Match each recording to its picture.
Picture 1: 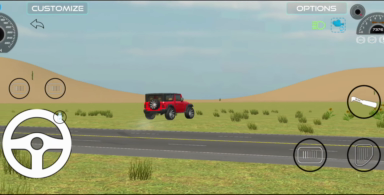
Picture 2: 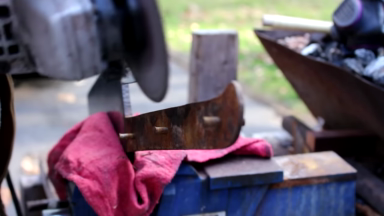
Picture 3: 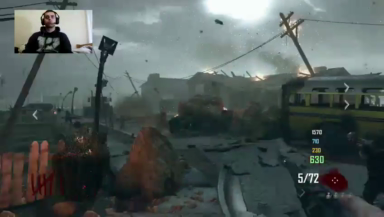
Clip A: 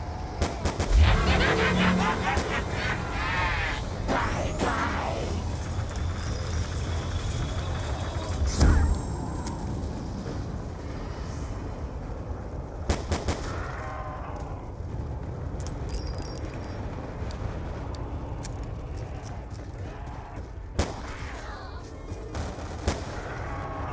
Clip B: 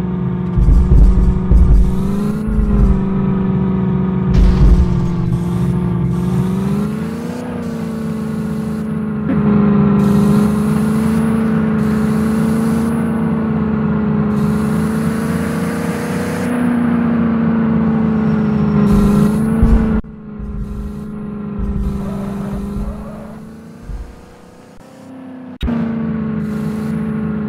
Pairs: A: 3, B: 1